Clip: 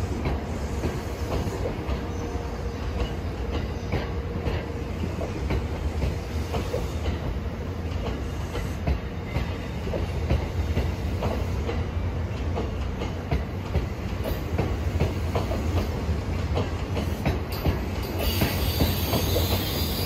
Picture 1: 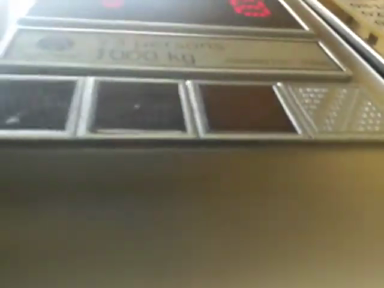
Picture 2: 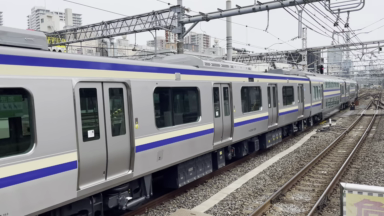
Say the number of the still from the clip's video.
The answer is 2